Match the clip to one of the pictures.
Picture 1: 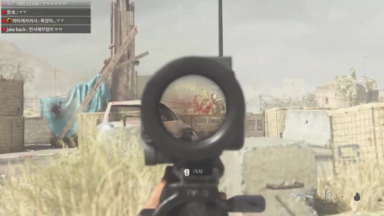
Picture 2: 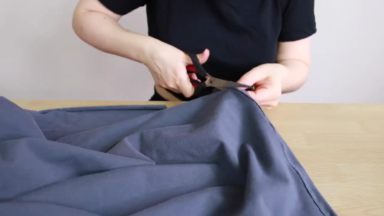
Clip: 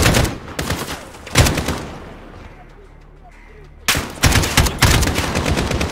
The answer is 1